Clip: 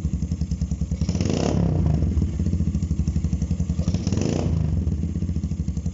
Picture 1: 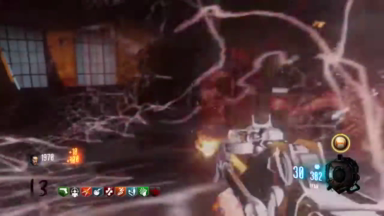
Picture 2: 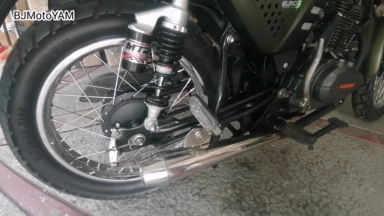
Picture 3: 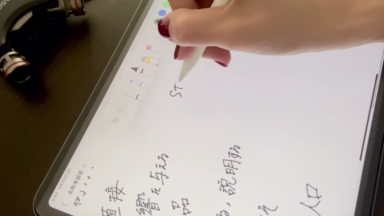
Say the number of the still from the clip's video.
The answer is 2